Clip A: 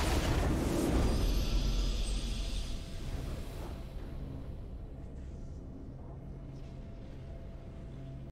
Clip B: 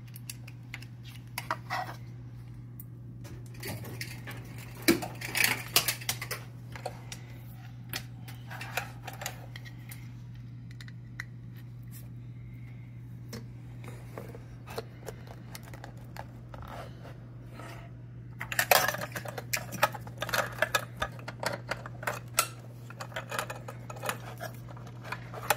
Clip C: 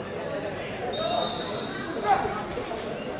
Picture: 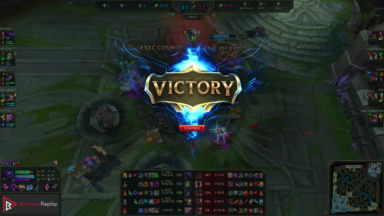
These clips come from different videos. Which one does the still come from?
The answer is A